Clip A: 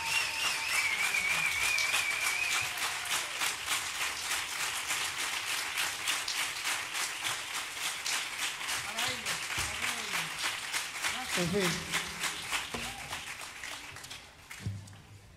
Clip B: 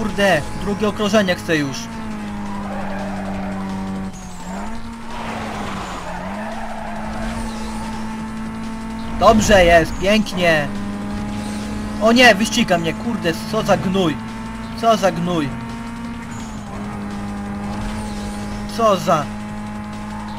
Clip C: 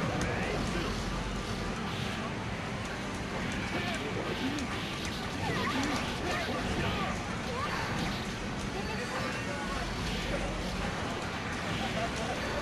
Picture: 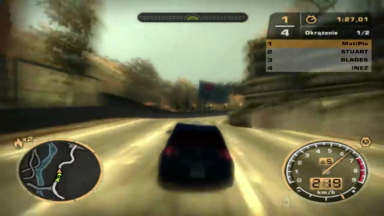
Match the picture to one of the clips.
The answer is B